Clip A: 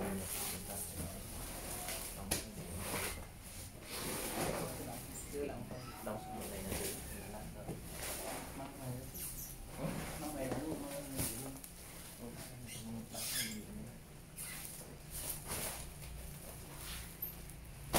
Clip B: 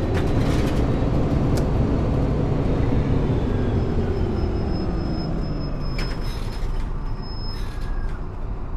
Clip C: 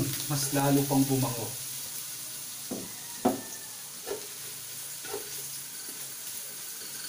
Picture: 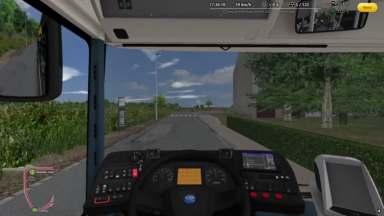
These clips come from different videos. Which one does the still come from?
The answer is B